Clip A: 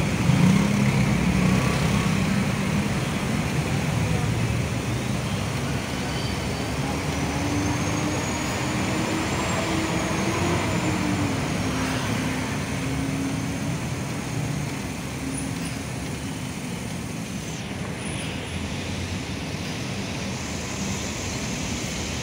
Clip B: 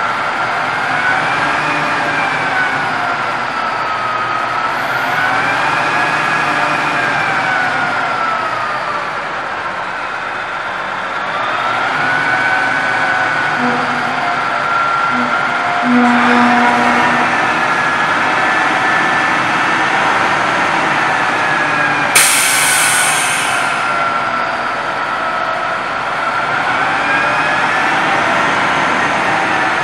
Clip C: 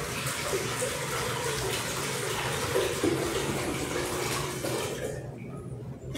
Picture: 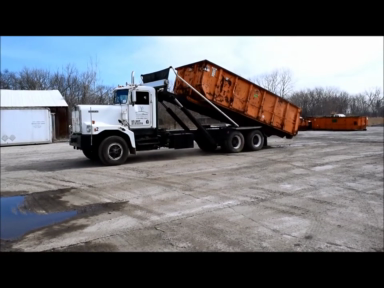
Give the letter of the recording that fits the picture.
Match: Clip B